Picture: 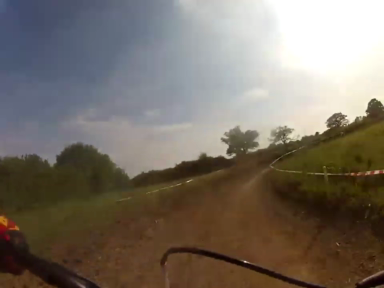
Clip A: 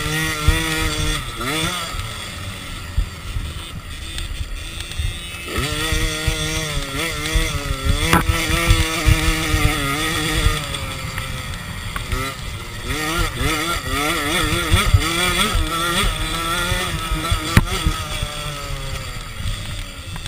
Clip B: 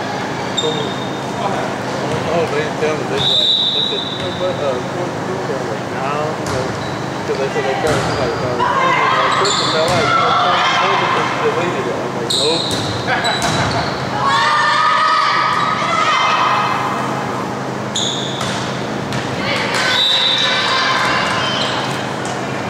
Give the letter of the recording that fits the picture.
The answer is A